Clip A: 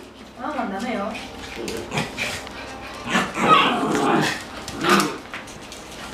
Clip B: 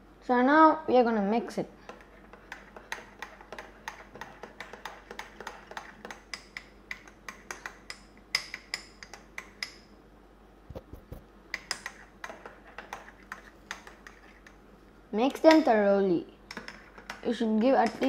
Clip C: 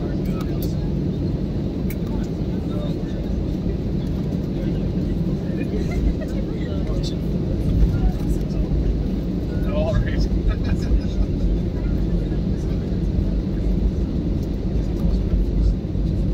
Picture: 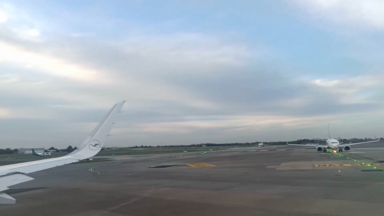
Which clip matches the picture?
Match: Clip C